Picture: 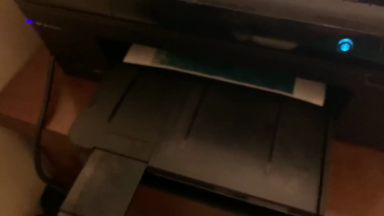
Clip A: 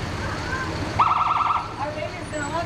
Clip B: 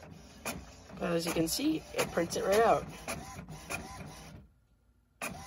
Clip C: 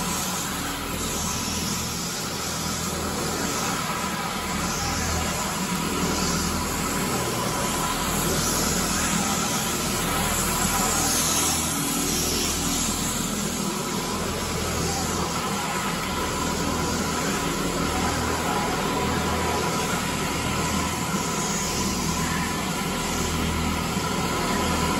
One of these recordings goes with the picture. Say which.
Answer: B